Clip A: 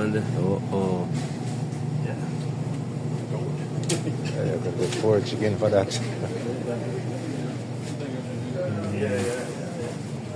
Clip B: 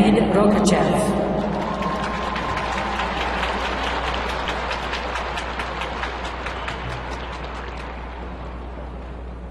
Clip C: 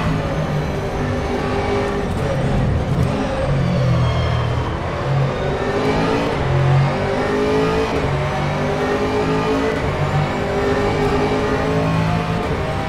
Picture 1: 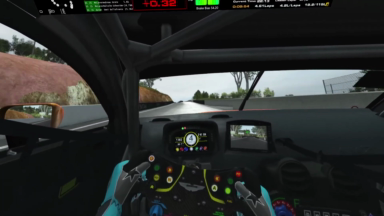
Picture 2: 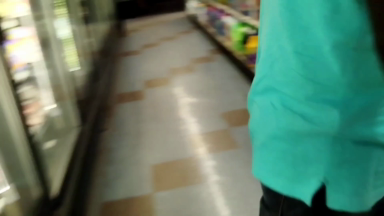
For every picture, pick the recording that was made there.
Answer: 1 C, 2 A